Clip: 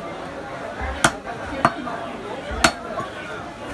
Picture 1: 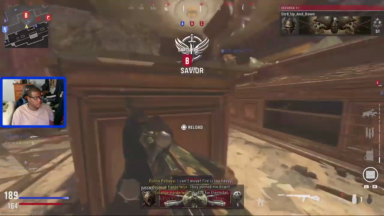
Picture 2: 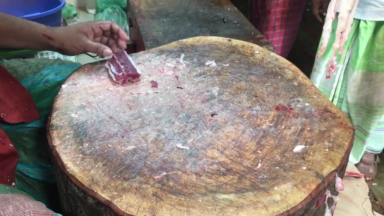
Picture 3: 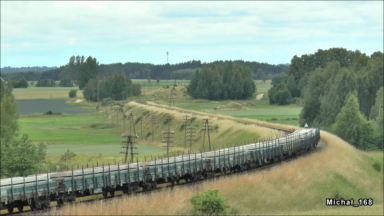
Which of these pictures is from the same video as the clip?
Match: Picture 2